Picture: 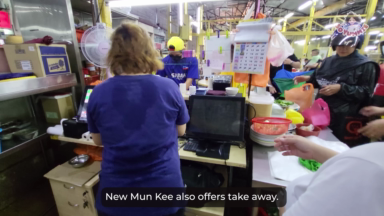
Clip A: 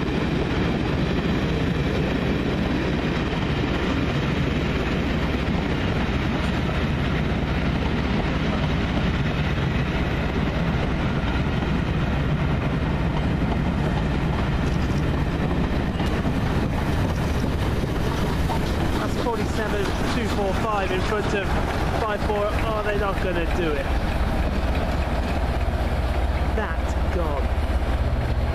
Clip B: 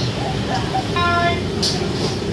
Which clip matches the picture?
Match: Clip B